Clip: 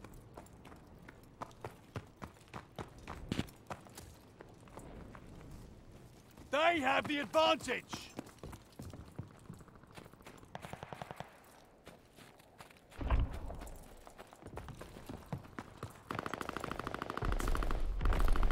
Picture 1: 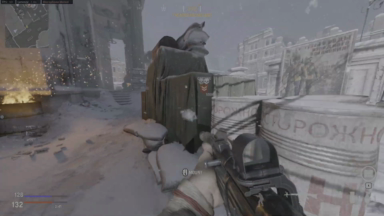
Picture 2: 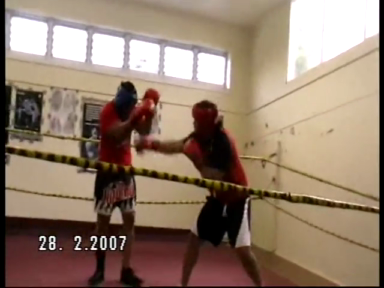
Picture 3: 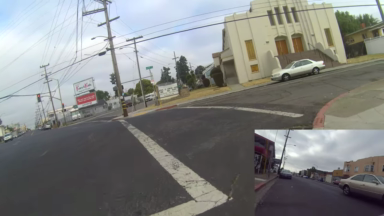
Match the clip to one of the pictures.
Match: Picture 1